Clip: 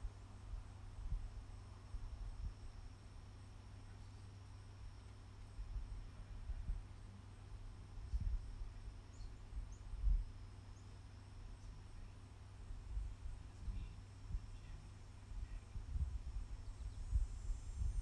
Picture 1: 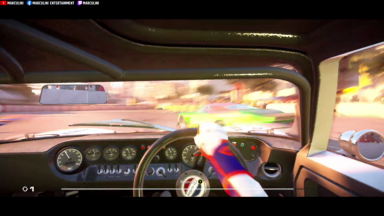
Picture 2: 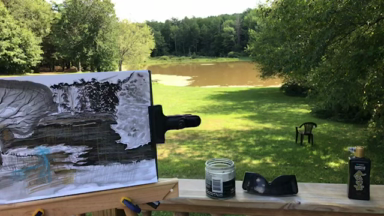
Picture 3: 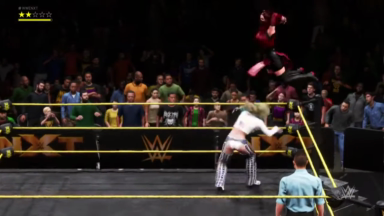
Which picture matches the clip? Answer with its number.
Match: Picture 2